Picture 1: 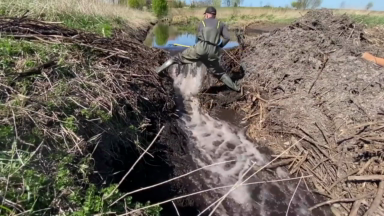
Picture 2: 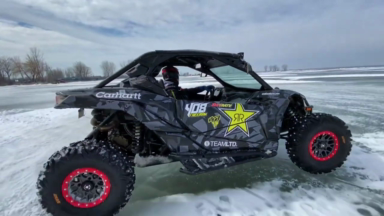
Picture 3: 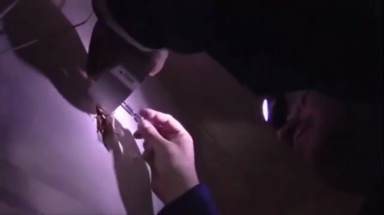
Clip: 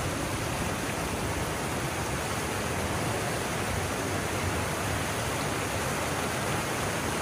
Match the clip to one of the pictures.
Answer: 1